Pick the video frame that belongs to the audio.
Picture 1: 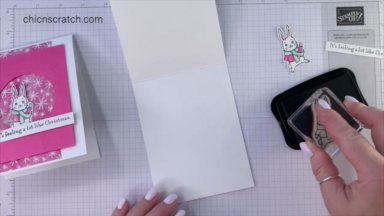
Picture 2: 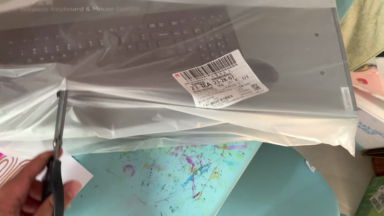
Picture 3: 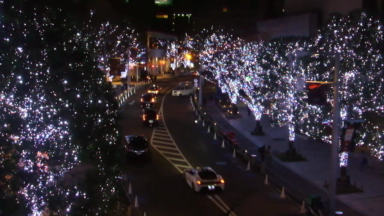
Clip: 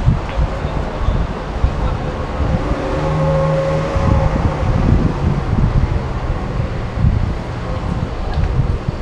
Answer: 3